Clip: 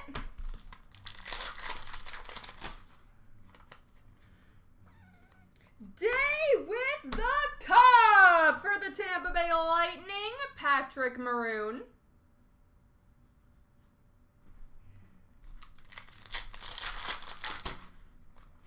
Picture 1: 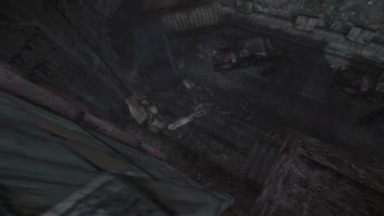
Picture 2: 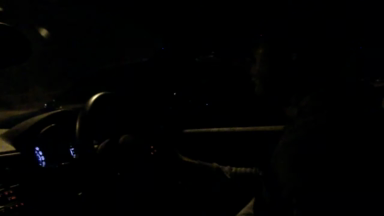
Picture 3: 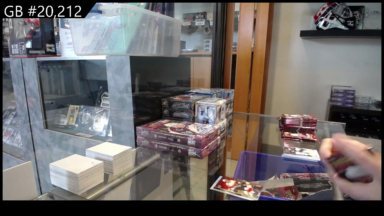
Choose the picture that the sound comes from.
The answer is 3